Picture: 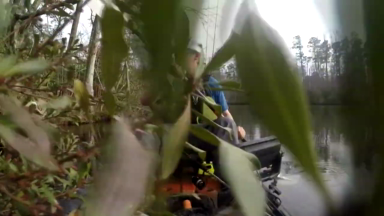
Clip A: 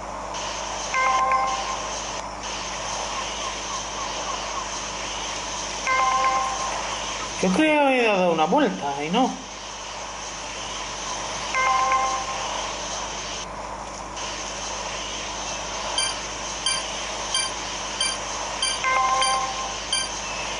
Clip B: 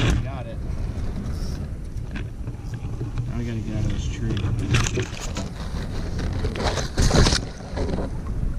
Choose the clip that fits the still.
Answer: B